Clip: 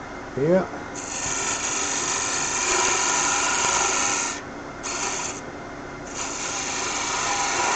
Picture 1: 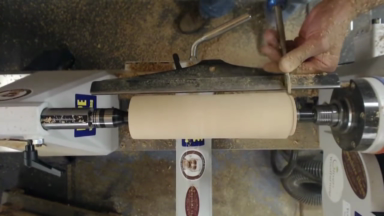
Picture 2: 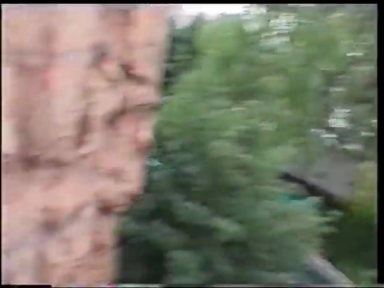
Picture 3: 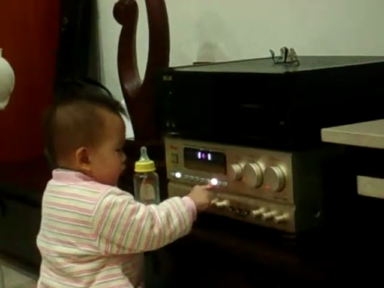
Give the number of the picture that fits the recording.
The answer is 1